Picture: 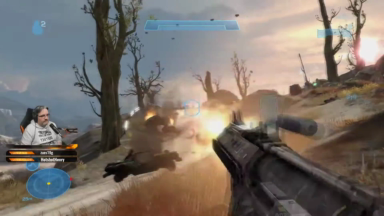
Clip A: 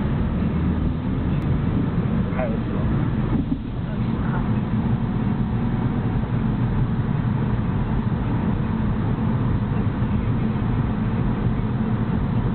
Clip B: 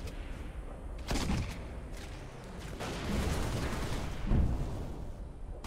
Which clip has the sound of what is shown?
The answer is B